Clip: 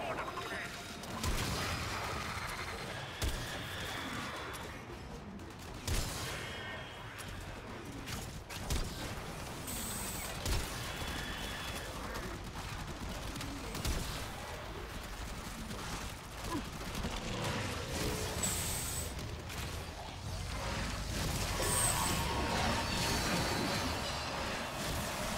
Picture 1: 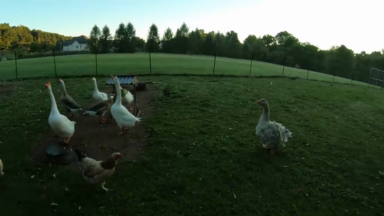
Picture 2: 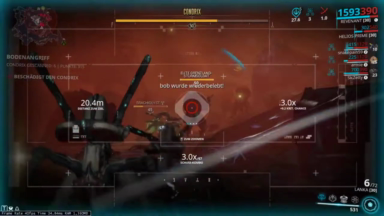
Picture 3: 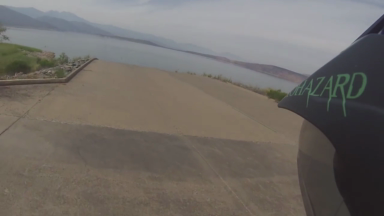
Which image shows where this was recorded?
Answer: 2